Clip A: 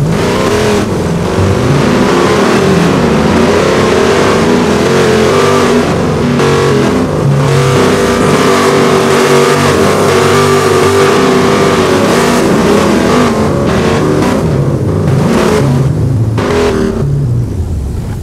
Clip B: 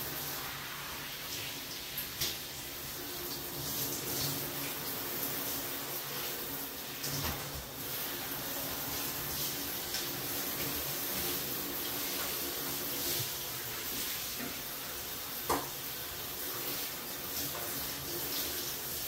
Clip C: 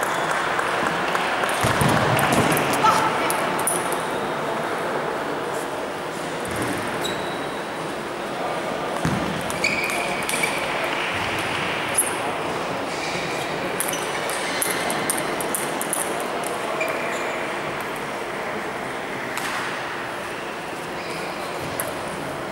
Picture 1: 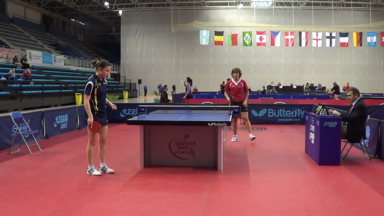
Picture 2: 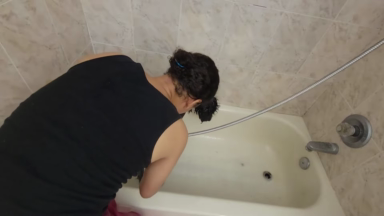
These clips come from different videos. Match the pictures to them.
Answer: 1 C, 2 B